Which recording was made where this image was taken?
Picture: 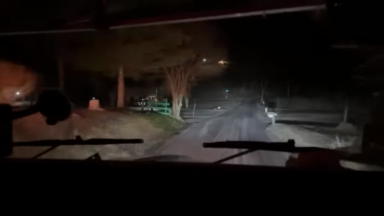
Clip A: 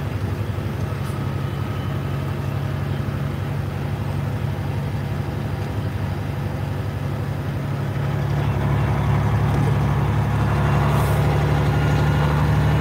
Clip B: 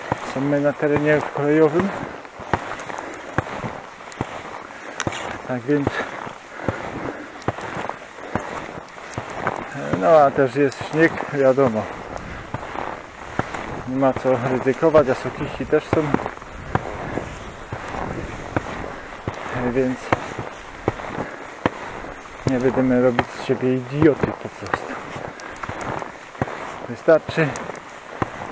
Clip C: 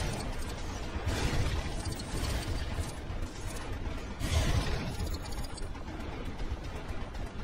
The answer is A